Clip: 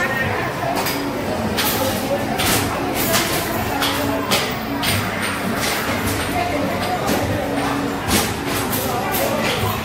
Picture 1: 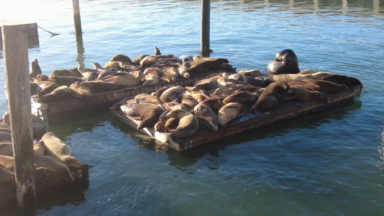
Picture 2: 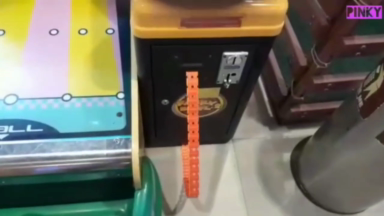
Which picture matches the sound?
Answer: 2